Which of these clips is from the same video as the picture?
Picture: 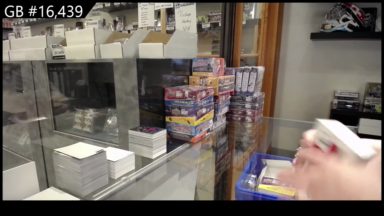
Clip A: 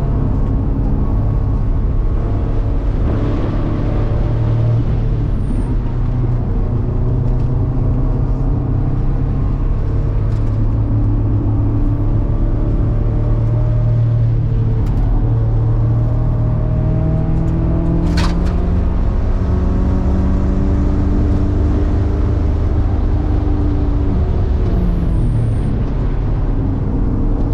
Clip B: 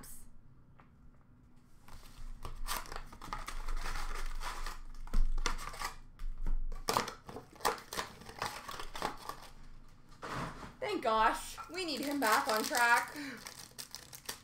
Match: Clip B